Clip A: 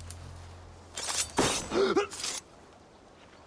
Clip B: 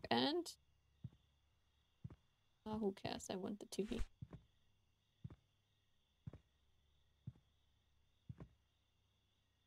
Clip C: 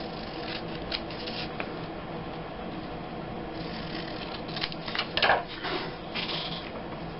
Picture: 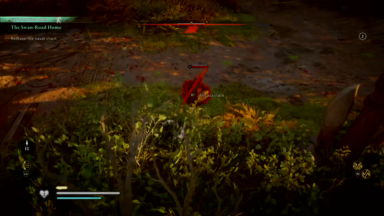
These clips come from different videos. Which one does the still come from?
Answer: A